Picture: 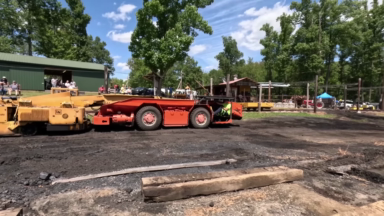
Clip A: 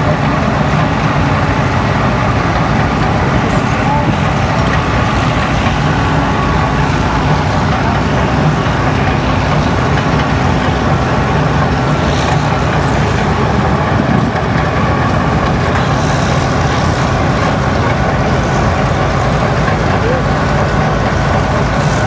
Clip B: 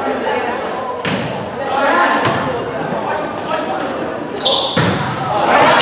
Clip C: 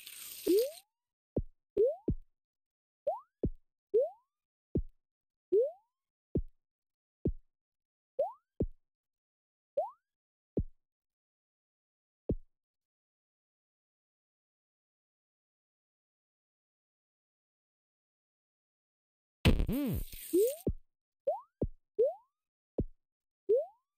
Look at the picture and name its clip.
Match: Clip A